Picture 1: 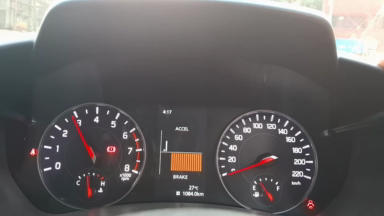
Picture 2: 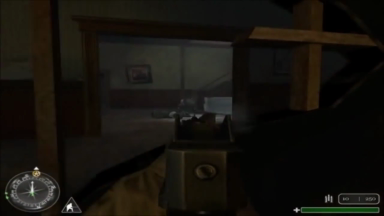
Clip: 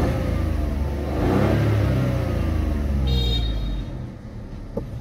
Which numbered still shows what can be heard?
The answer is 1